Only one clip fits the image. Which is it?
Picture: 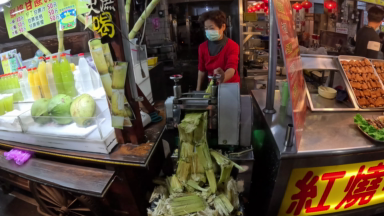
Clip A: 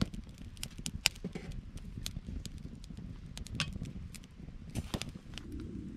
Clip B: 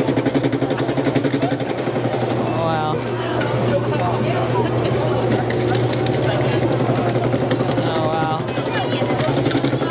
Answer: B